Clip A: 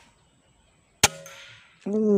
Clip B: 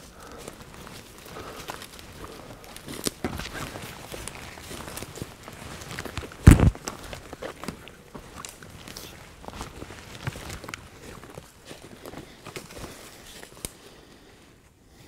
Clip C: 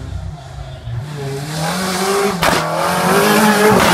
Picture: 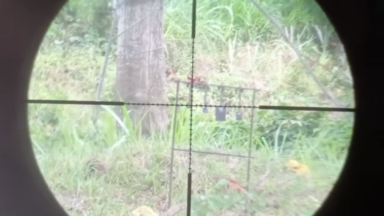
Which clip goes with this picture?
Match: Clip A